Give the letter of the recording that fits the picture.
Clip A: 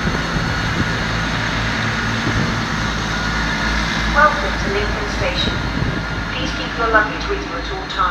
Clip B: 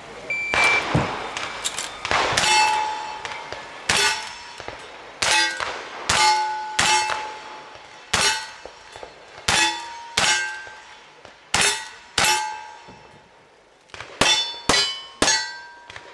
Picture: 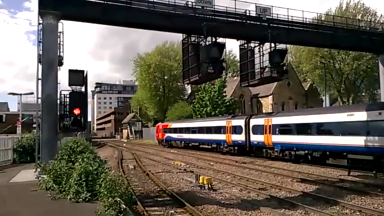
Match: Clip A